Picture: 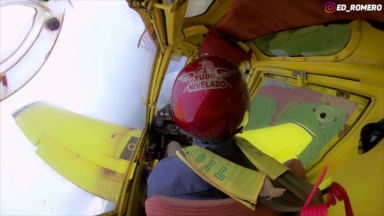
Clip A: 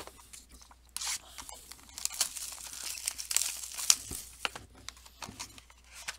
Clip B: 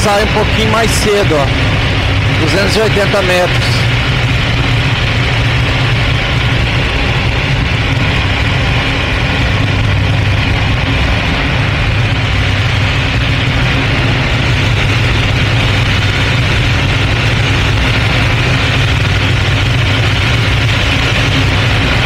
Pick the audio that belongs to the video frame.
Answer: B